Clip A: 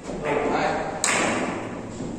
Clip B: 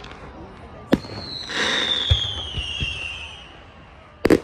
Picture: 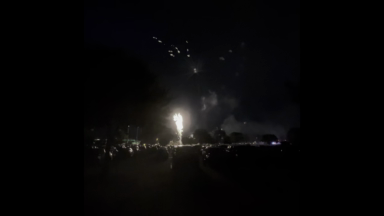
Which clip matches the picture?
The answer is B